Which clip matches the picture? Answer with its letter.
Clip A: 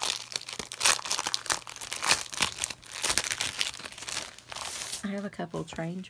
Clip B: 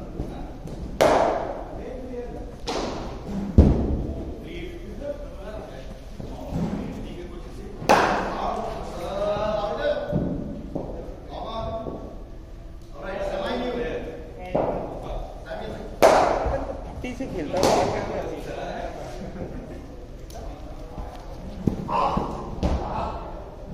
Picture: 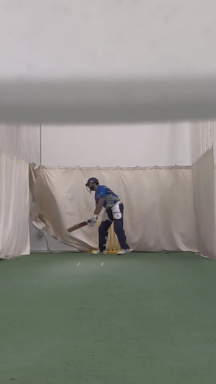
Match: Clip B